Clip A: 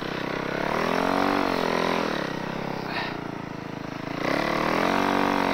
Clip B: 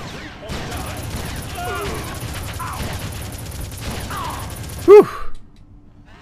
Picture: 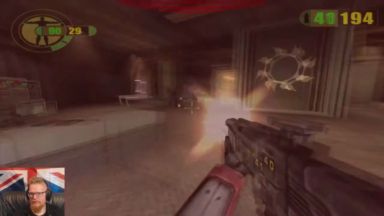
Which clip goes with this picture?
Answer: B